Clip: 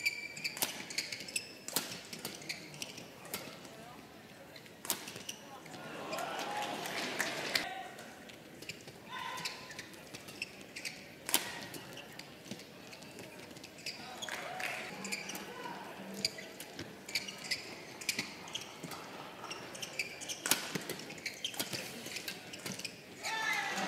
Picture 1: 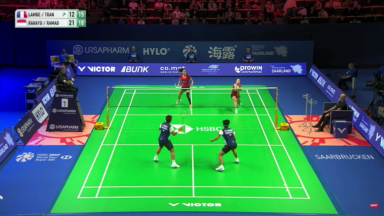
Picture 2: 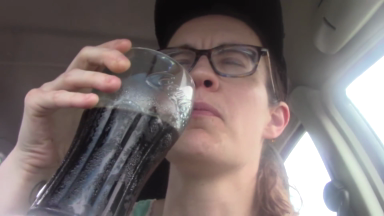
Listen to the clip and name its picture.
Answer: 1